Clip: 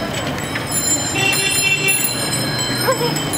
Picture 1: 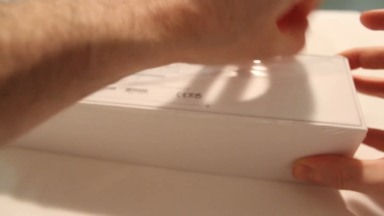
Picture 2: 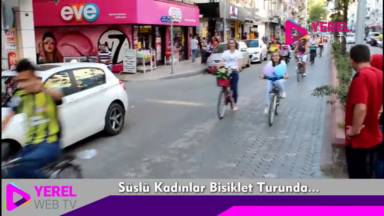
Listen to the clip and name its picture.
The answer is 2